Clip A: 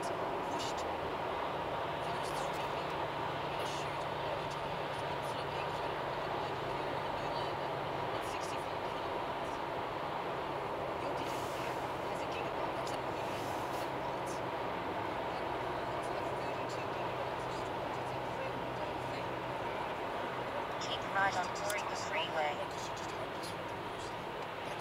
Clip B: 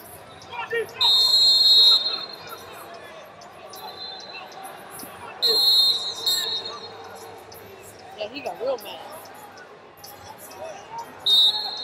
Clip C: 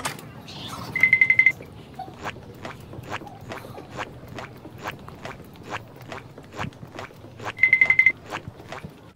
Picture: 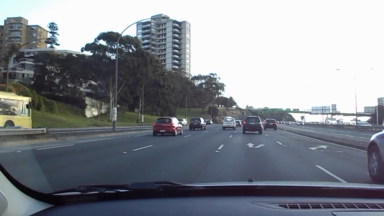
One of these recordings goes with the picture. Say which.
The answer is A